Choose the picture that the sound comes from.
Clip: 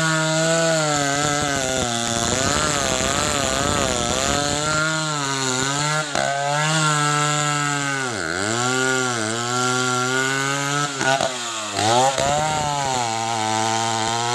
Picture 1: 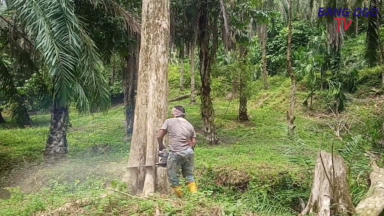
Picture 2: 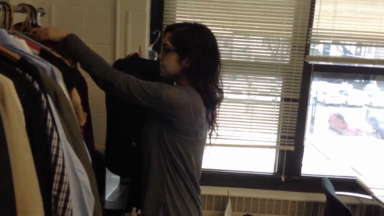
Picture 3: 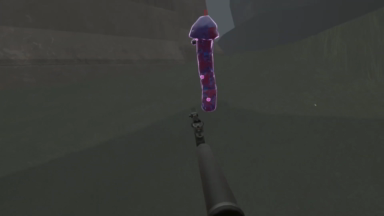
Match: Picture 1